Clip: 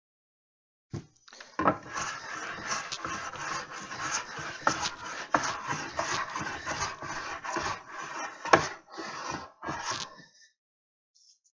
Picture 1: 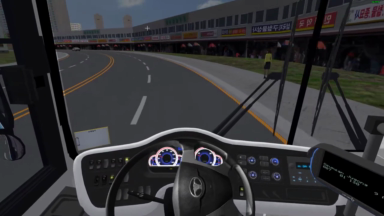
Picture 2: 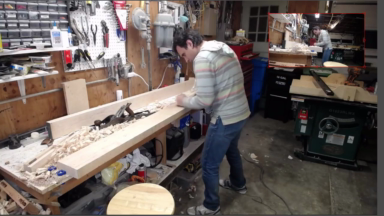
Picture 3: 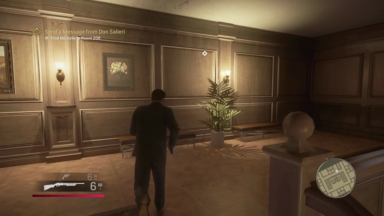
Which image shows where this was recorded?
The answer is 2